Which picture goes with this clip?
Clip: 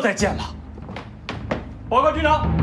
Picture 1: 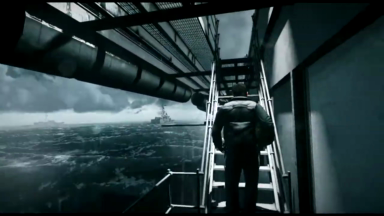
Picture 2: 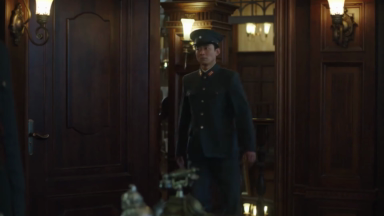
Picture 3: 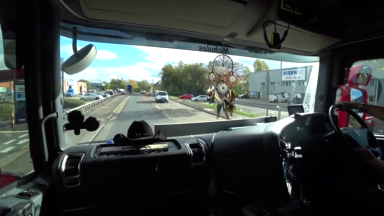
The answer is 2